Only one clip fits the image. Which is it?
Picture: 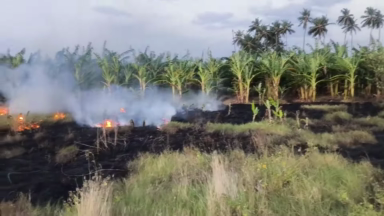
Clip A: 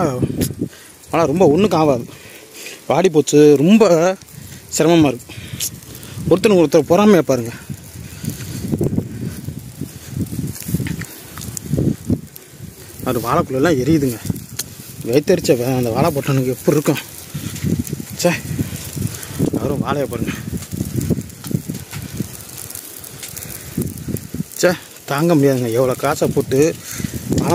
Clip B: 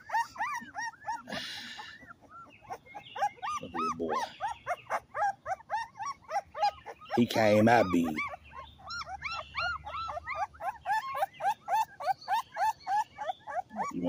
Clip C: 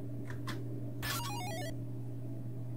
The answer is A